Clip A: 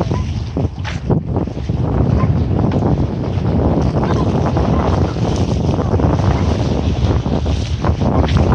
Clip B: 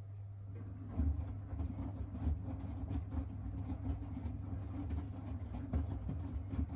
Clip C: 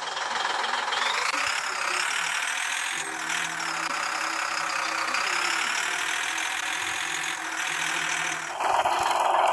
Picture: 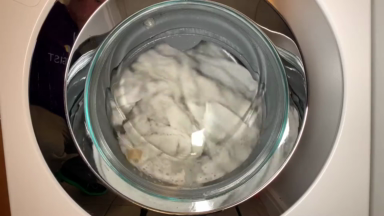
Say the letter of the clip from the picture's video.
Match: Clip B